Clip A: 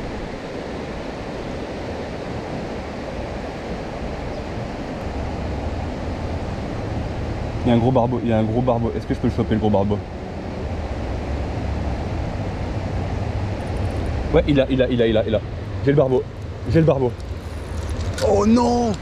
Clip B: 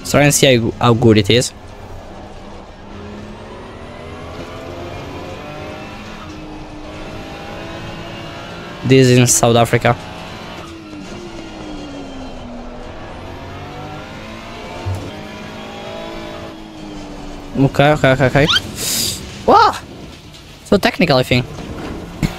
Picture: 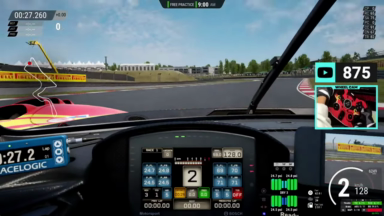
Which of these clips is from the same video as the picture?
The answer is B